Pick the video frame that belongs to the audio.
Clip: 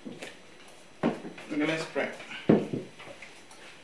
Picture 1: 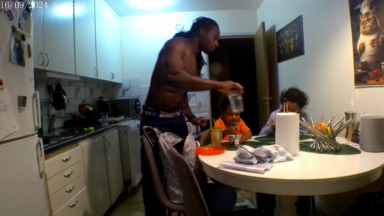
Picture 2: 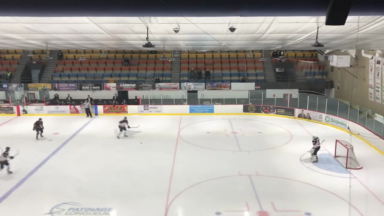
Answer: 1